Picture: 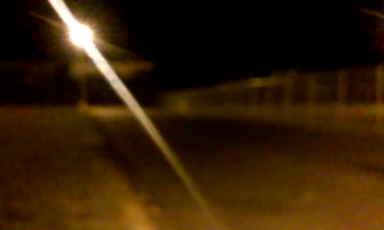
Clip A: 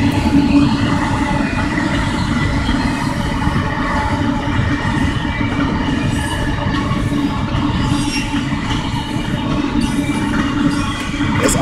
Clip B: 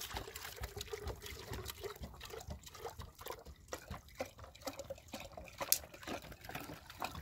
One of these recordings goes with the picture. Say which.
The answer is A